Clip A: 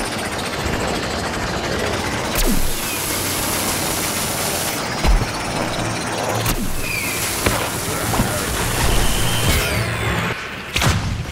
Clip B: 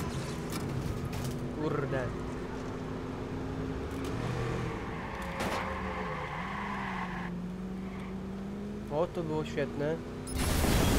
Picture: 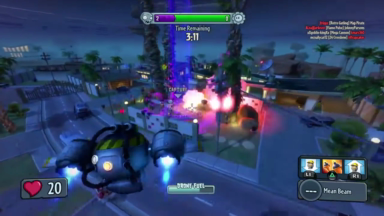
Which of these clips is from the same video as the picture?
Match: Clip A